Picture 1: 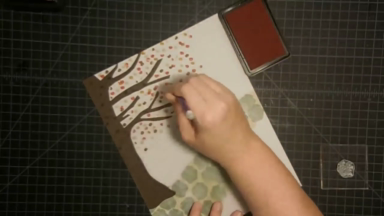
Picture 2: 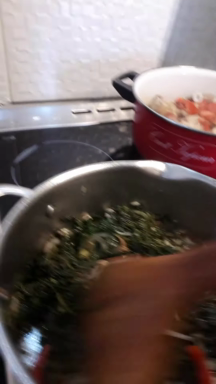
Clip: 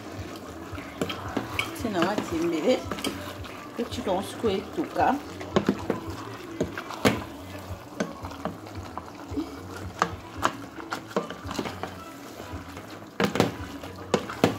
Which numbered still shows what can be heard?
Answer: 2